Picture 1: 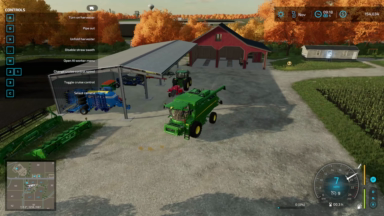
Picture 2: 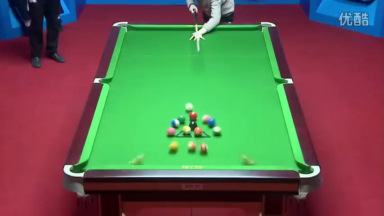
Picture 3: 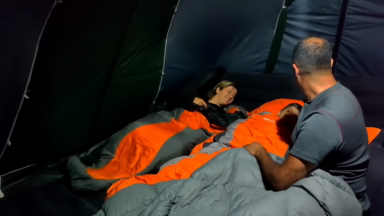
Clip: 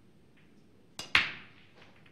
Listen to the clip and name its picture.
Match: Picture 2